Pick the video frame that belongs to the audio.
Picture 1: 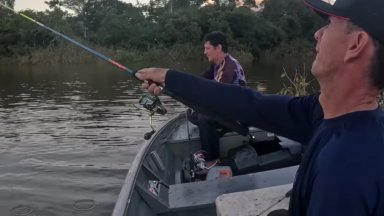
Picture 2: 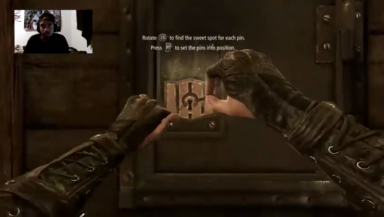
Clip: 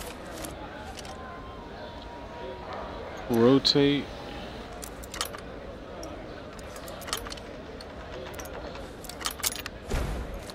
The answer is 2